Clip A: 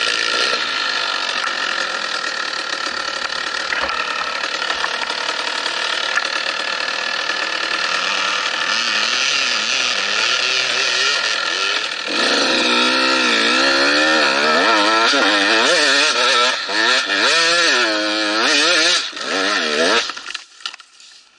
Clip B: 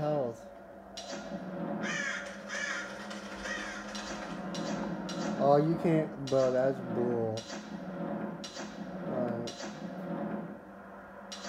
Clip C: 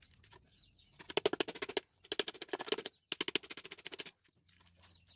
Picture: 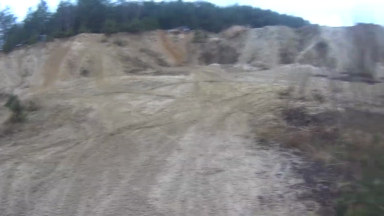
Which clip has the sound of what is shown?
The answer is A